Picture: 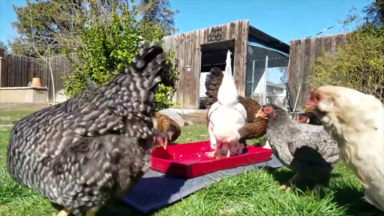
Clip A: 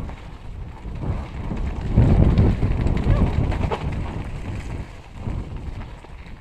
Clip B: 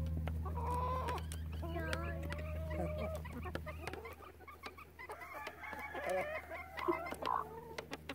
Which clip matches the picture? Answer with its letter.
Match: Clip B